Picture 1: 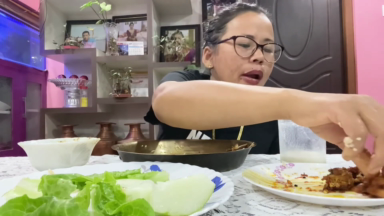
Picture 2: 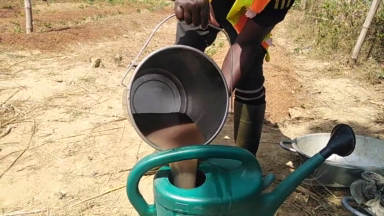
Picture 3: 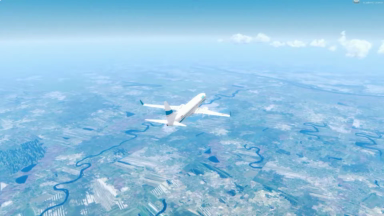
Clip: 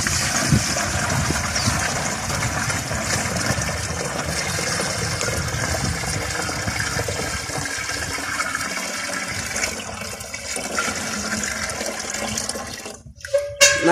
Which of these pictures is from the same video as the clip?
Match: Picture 2